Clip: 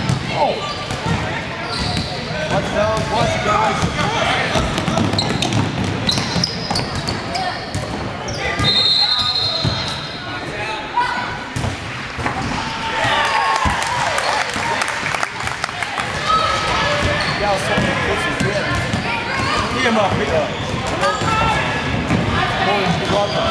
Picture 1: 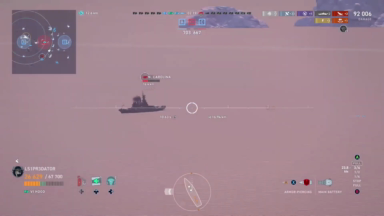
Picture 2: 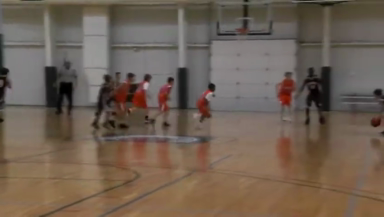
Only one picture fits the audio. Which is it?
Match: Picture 2